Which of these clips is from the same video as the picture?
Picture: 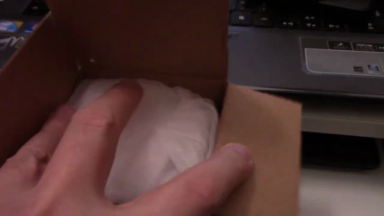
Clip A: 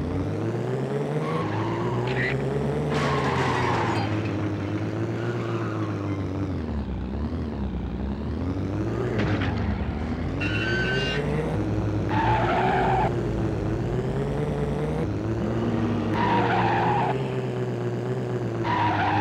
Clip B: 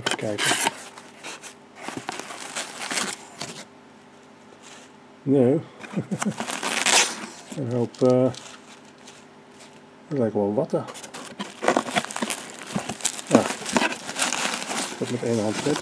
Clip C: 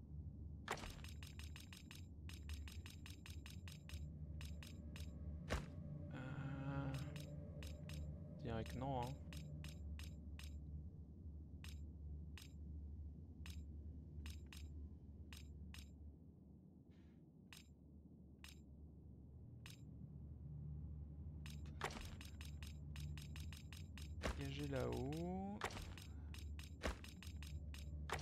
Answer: B